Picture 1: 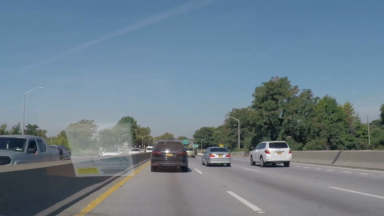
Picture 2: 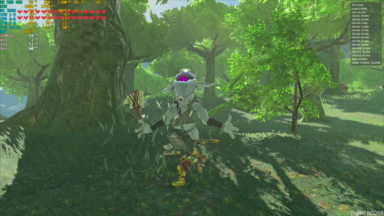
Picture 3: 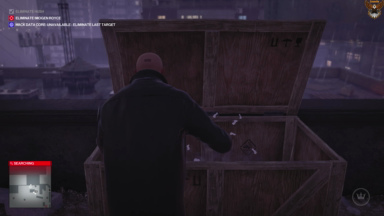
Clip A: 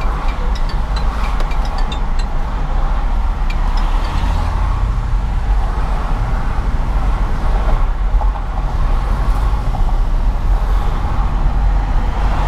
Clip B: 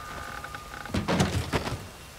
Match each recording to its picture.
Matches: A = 1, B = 3